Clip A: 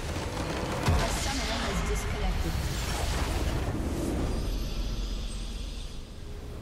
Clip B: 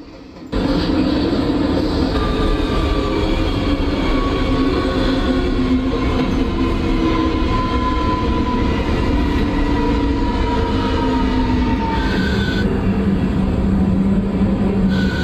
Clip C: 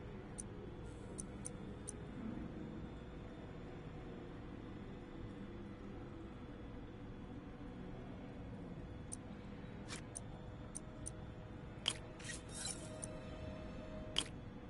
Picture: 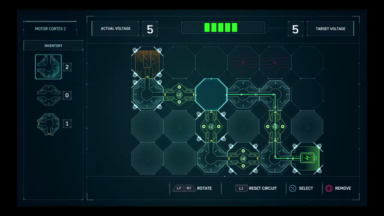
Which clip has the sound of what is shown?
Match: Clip C